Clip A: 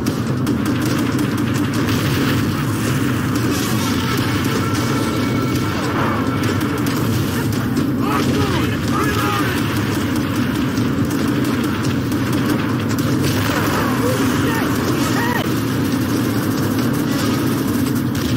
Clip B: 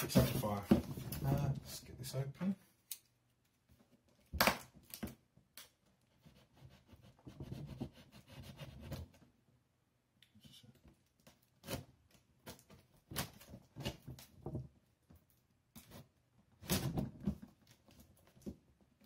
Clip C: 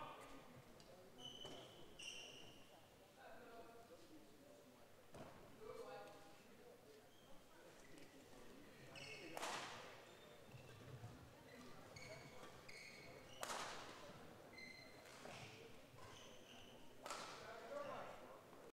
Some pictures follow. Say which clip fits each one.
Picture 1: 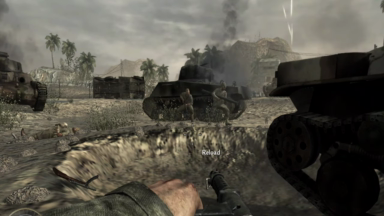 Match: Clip A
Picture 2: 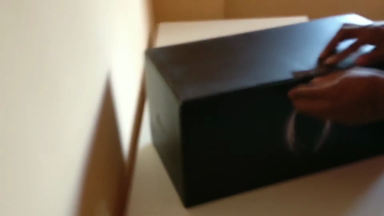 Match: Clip B